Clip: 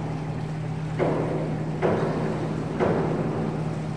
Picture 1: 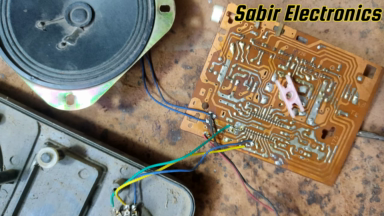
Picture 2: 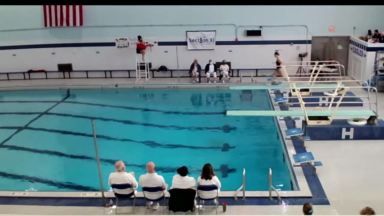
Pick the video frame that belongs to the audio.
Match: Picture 2